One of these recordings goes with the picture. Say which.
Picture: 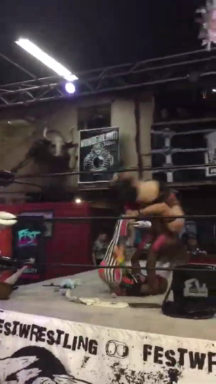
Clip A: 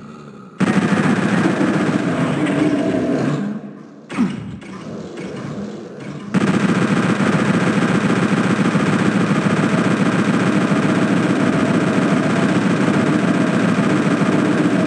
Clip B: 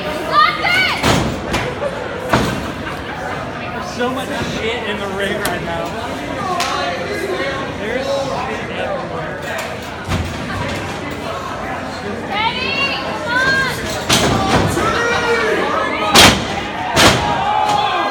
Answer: B